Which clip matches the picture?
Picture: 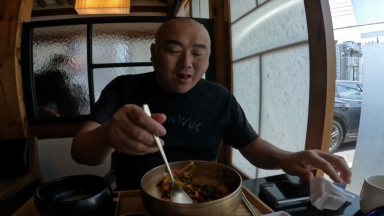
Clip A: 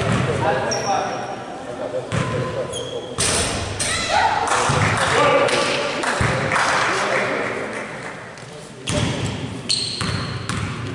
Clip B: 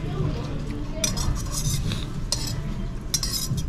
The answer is B